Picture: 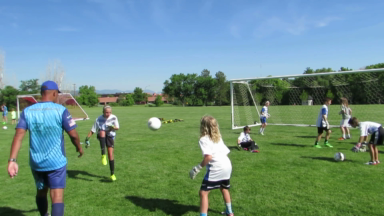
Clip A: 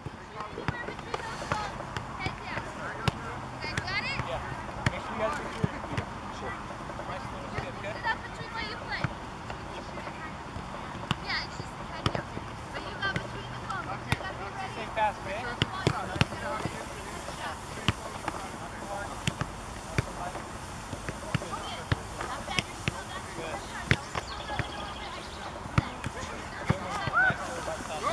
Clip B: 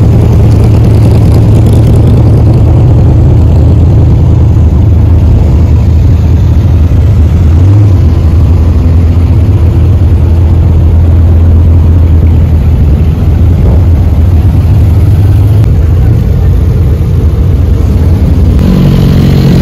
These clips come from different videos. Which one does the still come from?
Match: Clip A